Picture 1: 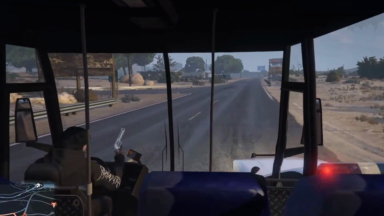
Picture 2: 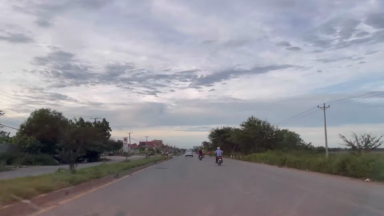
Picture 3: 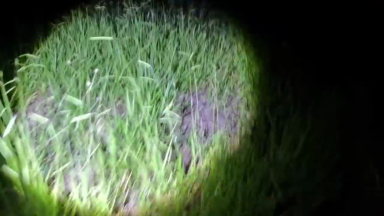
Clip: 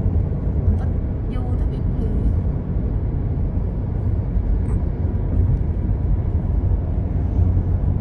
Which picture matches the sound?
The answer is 2